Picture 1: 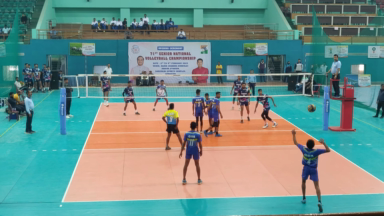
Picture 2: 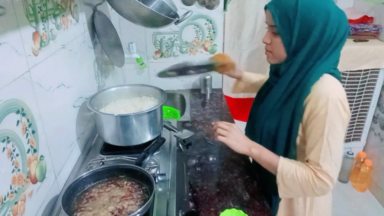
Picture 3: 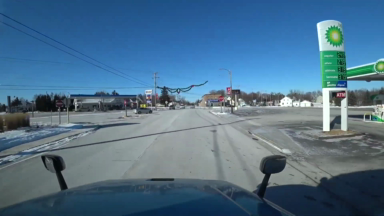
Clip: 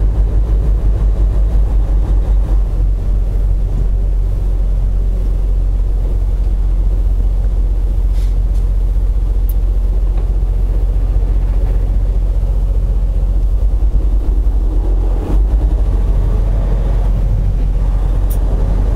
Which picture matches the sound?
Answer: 3